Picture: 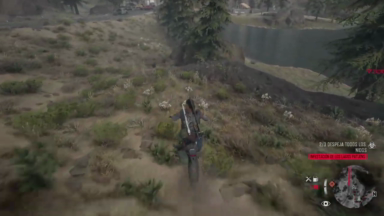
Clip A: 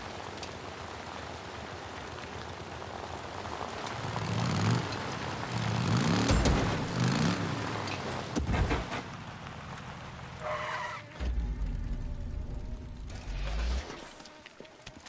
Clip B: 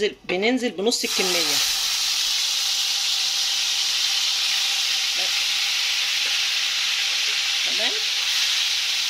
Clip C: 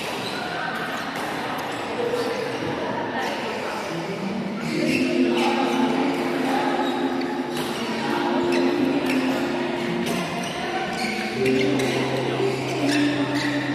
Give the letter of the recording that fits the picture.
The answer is A